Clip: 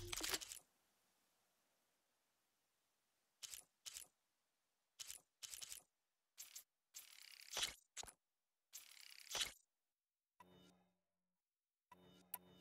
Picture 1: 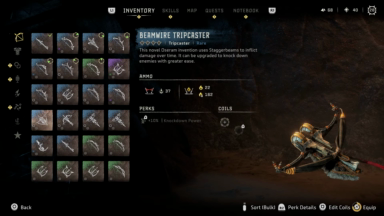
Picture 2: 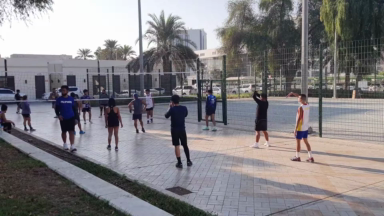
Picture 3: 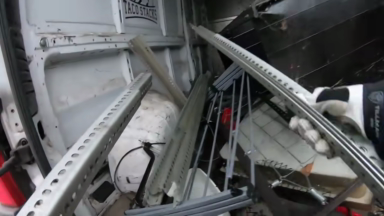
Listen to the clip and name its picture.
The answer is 1